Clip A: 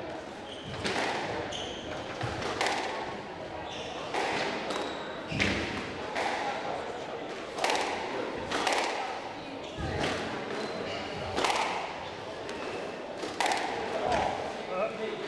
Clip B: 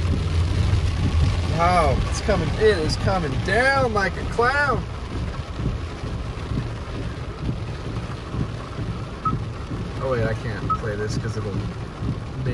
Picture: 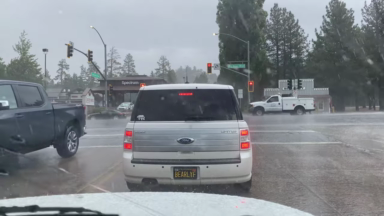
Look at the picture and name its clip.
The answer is B